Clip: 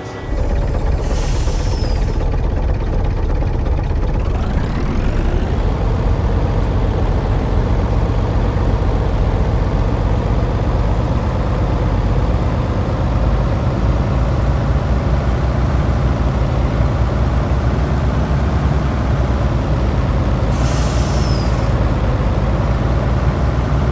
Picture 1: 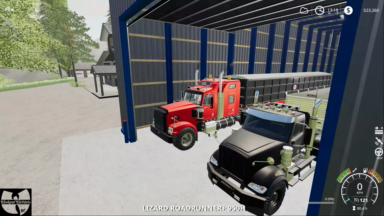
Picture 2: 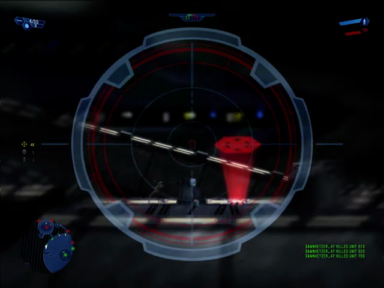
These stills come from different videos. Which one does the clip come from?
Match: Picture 1